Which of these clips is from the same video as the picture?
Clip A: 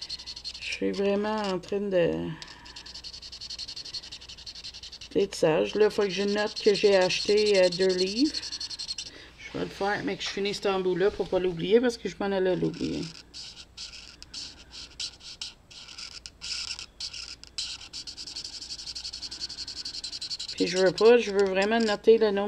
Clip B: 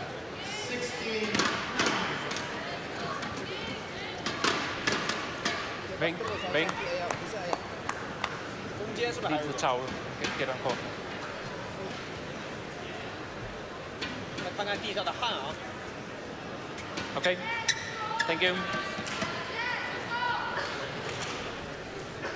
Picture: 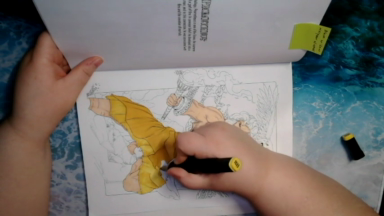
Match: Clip A